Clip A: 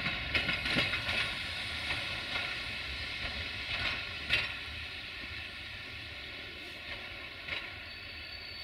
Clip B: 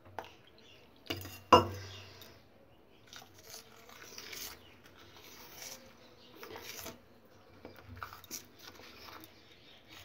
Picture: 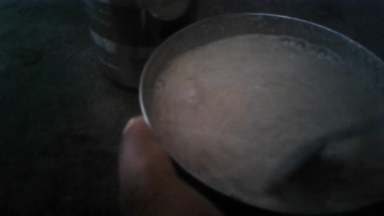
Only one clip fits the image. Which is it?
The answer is B